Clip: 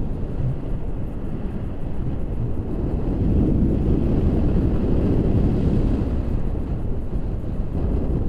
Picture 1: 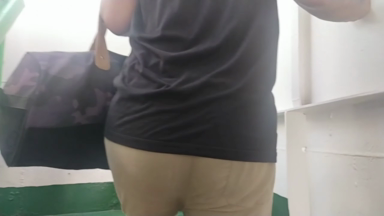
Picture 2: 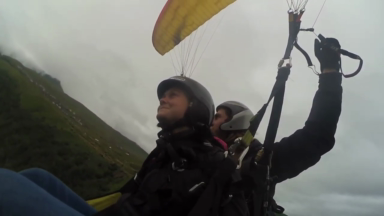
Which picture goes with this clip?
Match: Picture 2